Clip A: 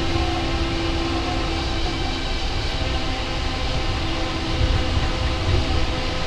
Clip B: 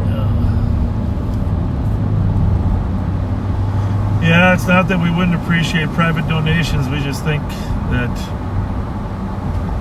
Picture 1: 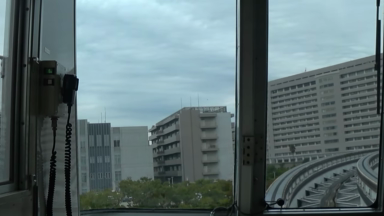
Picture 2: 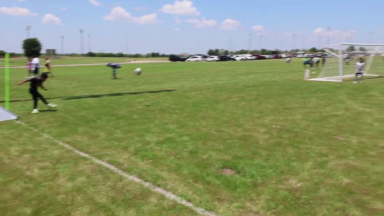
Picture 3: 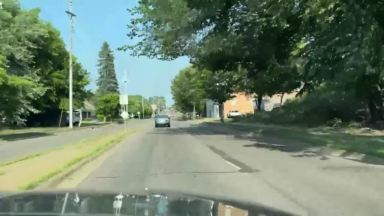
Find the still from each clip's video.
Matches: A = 1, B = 3